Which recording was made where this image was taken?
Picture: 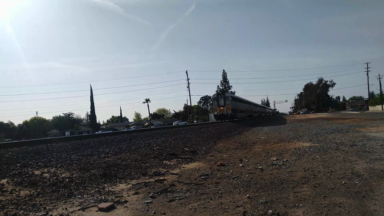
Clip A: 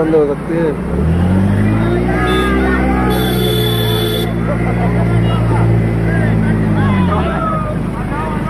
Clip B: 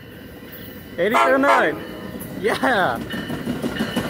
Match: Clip B